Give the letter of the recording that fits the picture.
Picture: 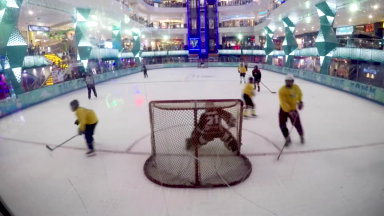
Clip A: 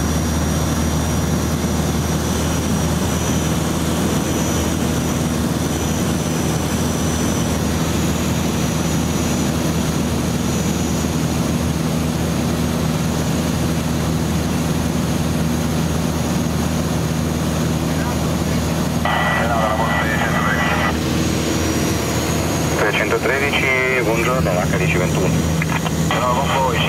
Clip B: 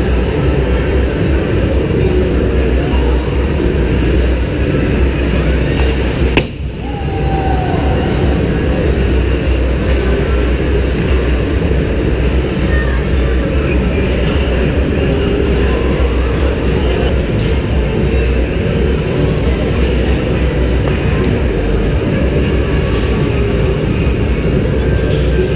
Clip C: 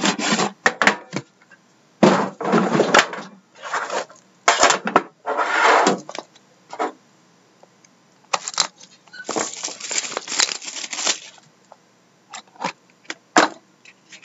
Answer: B